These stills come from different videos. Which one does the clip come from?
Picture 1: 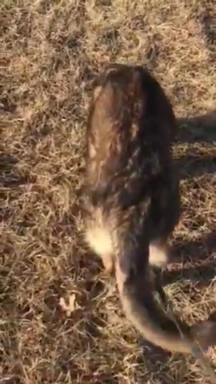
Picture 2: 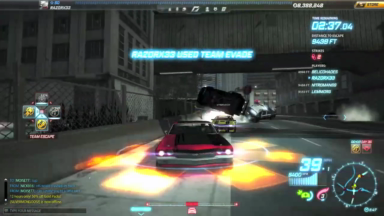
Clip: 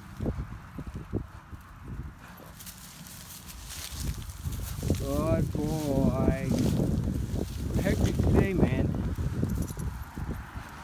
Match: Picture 1